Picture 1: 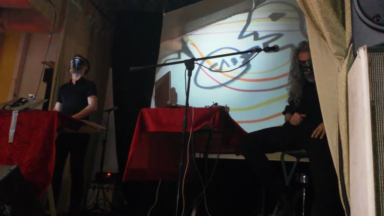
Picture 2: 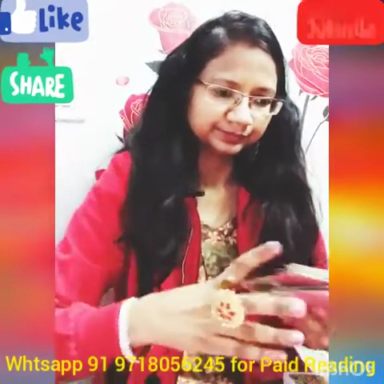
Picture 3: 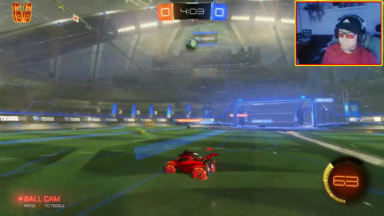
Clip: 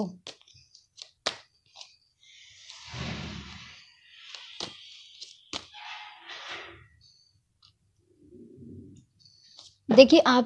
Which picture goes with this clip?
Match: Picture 2